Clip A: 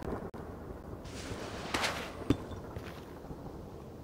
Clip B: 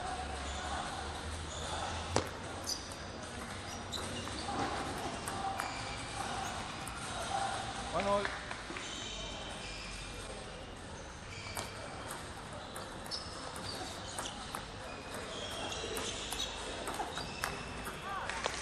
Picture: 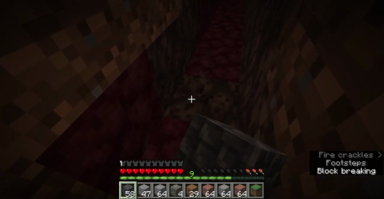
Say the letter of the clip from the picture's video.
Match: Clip A